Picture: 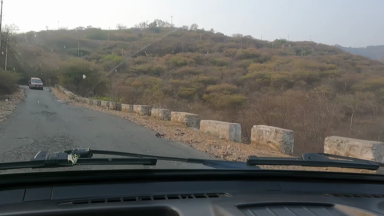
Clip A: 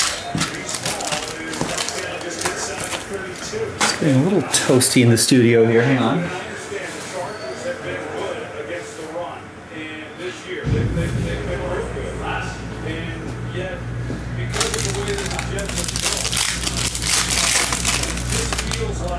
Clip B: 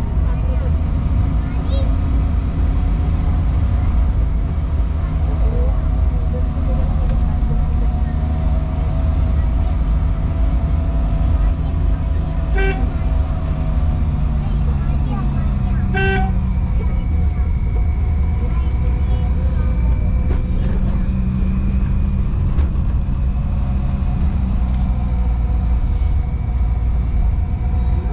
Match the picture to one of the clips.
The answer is B